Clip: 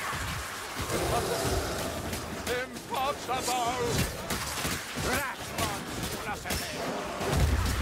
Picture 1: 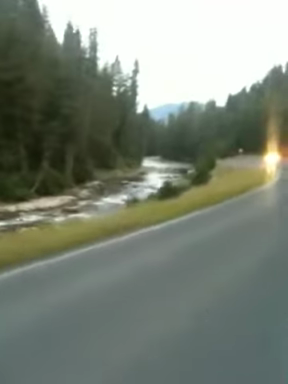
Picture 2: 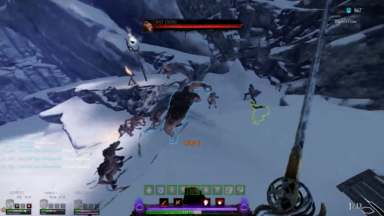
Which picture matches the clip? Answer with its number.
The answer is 2